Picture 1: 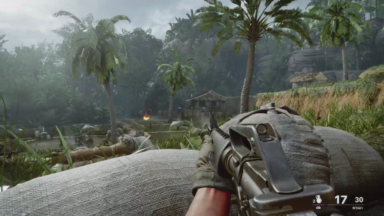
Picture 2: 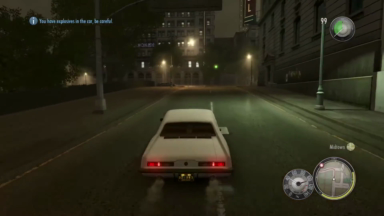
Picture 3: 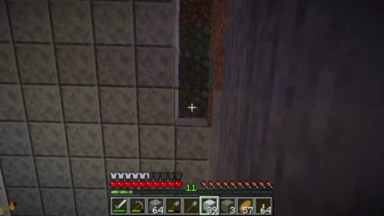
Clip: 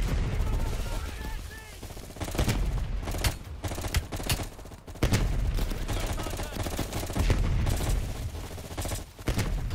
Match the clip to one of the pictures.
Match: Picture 1